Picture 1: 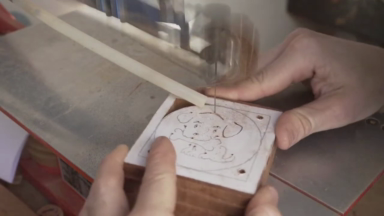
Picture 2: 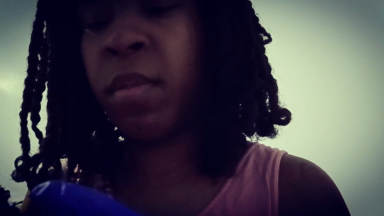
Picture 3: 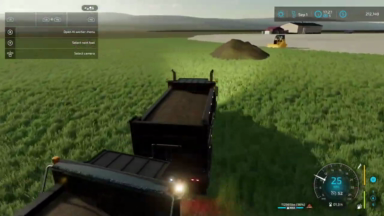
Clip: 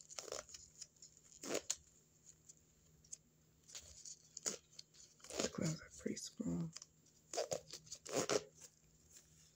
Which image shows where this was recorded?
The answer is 2